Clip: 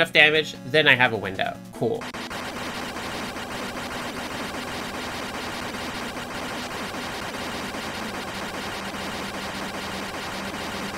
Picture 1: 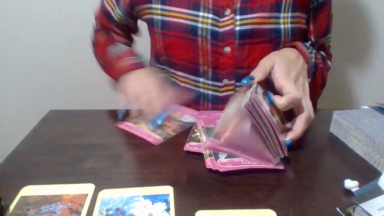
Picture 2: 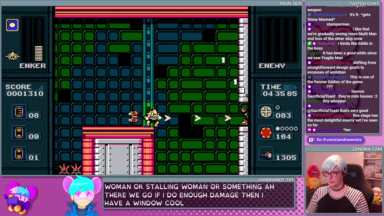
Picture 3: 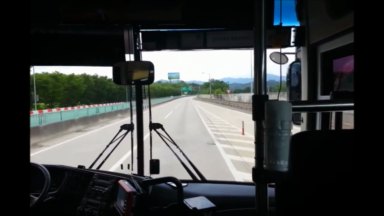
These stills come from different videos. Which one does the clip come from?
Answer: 2